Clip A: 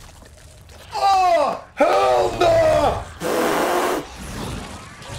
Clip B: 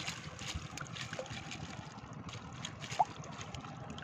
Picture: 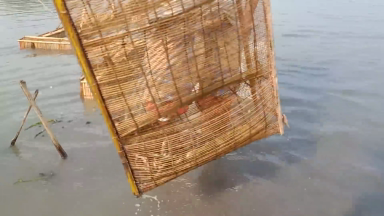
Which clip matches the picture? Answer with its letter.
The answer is B